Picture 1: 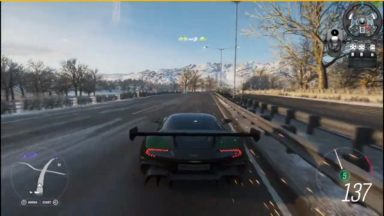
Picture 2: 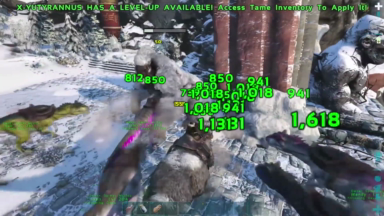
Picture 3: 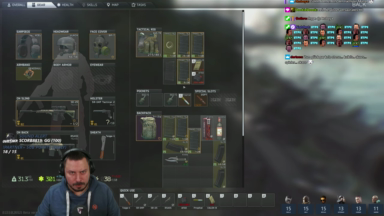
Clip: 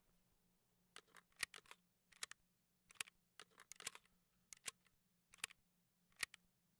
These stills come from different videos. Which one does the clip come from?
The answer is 3